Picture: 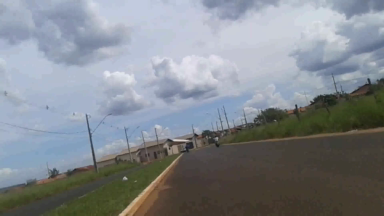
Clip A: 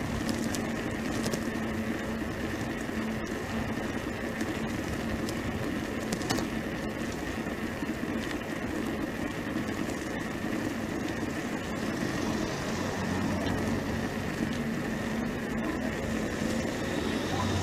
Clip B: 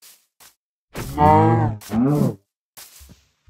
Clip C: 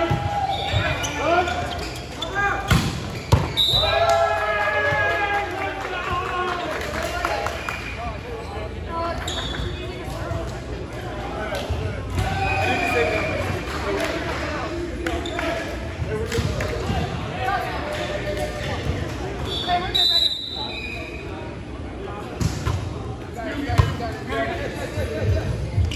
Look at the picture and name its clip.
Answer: A